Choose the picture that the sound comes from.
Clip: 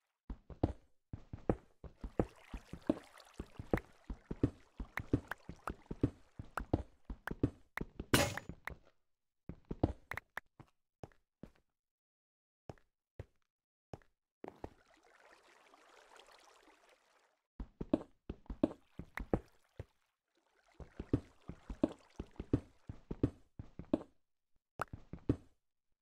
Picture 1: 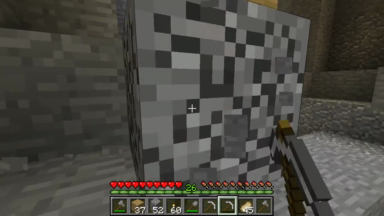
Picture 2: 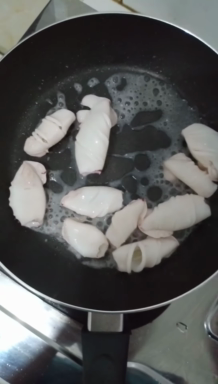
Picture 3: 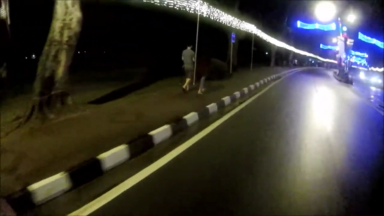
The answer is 1